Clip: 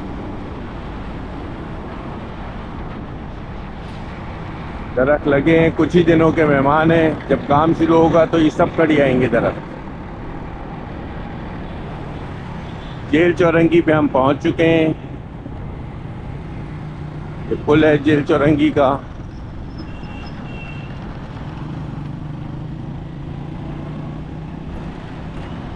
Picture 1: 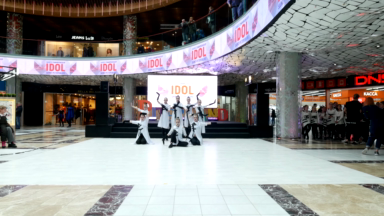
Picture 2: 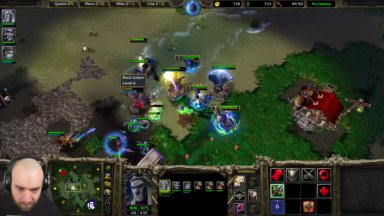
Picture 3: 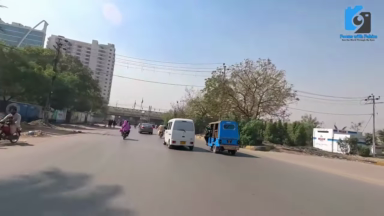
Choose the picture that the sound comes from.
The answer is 3